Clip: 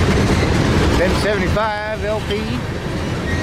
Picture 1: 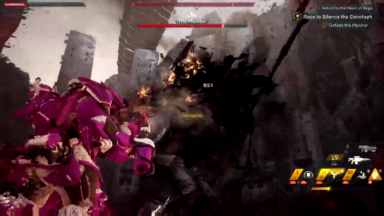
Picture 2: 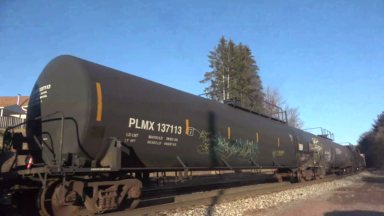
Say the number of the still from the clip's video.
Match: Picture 2